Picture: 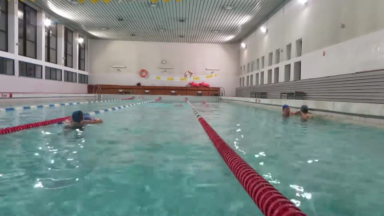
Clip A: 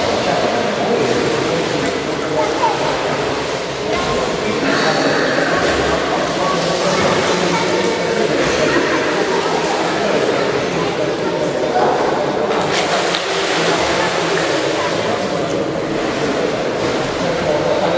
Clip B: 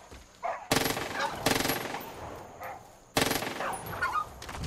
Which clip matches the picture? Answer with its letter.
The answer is A